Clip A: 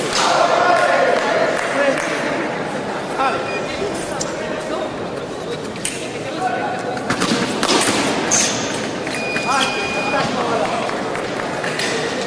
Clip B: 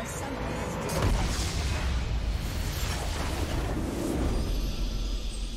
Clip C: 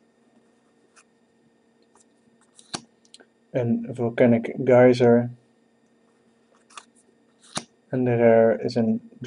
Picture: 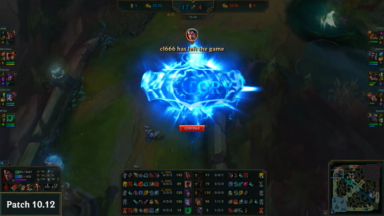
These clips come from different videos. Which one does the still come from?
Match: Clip B